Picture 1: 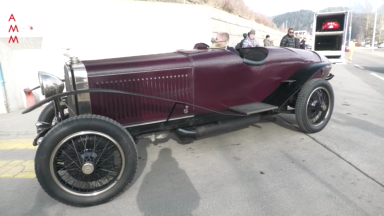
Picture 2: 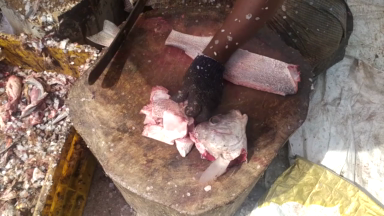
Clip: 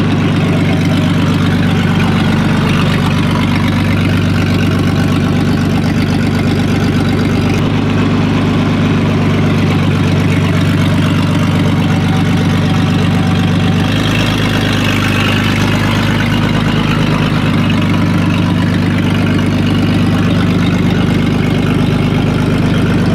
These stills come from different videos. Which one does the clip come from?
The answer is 1